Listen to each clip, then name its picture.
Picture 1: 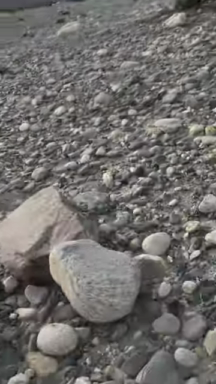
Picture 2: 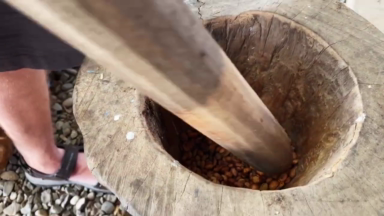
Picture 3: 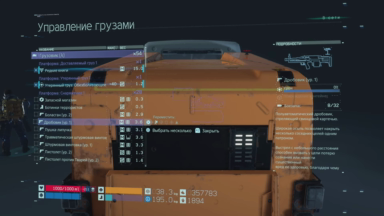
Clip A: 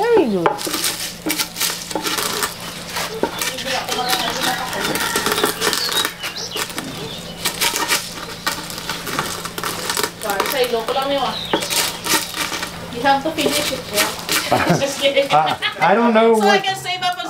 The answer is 2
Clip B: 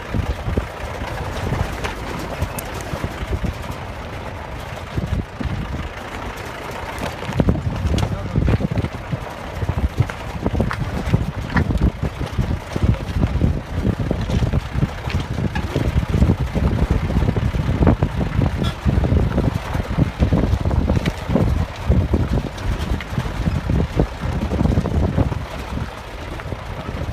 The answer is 1